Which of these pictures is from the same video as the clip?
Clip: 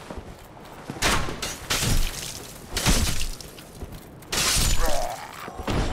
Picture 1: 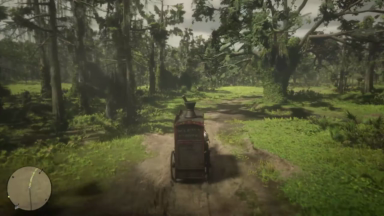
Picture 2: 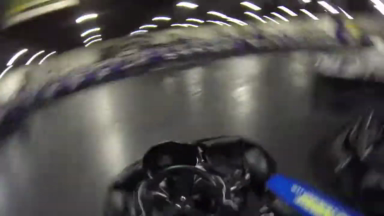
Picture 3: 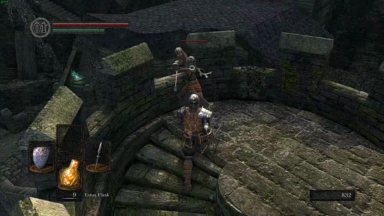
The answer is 3